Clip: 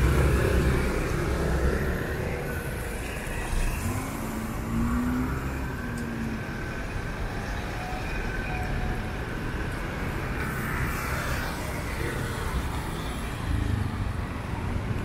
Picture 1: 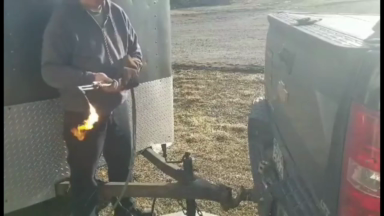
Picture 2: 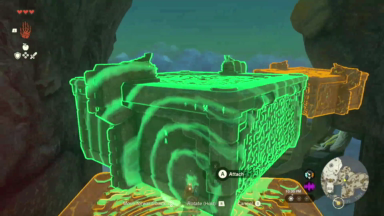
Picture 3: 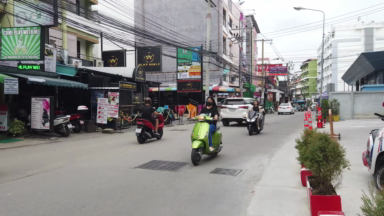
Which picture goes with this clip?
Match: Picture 3